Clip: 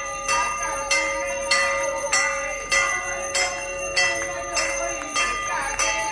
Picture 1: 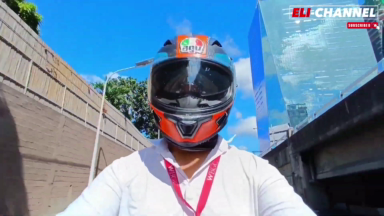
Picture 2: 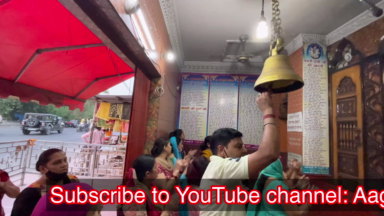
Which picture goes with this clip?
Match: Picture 2